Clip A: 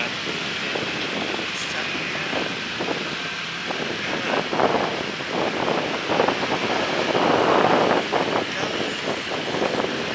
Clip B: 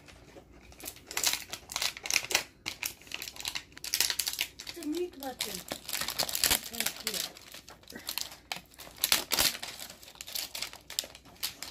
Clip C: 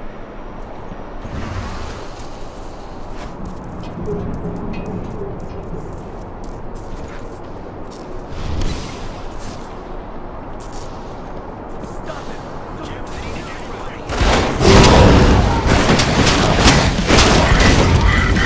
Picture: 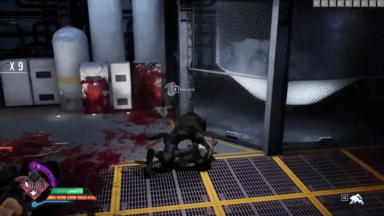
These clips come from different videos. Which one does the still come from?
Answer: C